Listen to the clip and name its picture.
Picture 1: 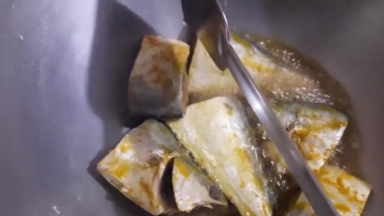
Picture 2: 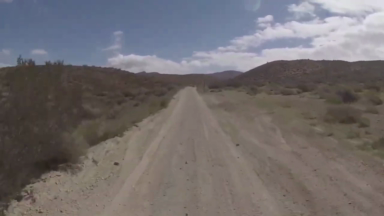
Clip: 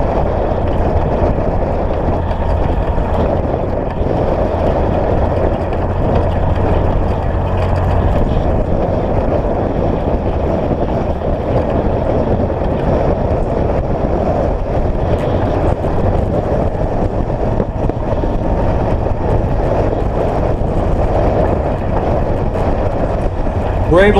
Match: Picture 2